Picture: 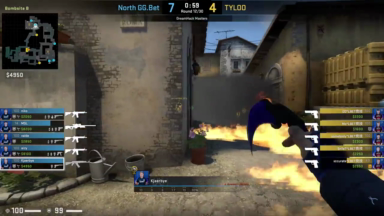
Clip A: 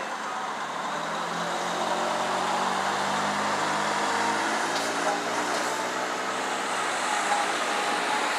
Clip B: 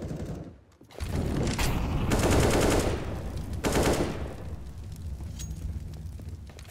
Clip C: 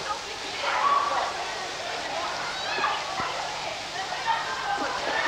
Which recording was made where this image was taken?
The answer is B